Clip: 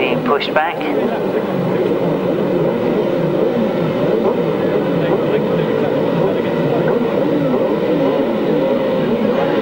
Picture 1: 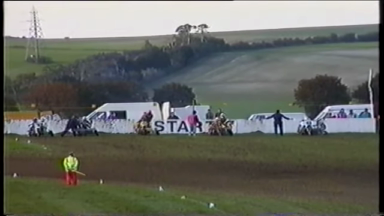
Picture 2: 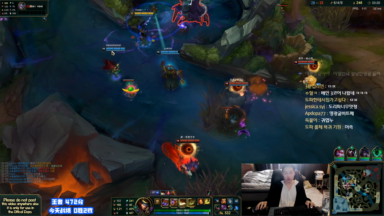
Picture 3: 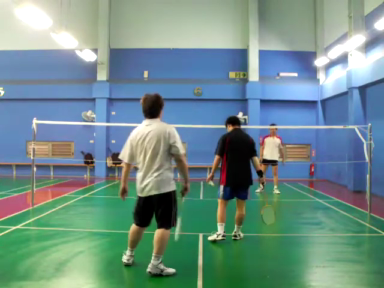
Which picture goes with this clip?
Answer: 1